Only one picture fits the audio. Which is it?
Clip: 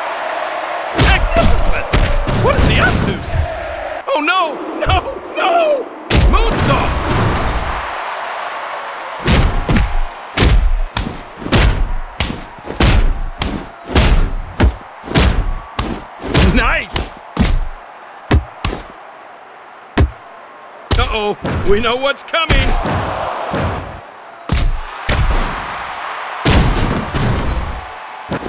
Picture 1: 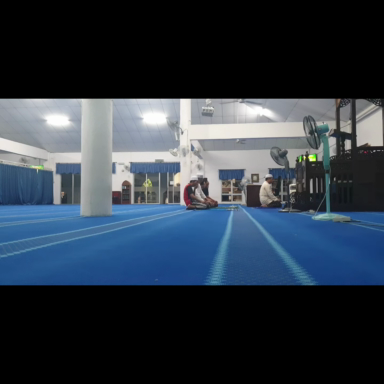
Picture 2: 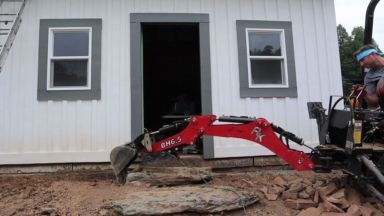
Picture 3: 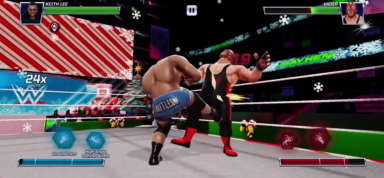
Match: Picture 3